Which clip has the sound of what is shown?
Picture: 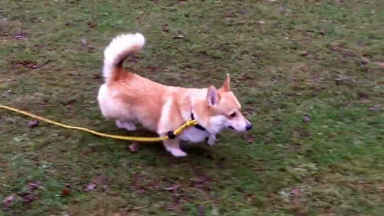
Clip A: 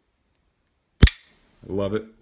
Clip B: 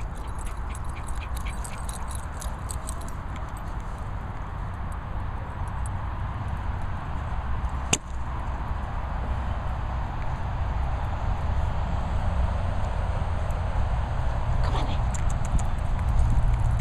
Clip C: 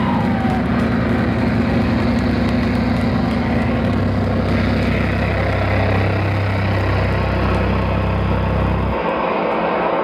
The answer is B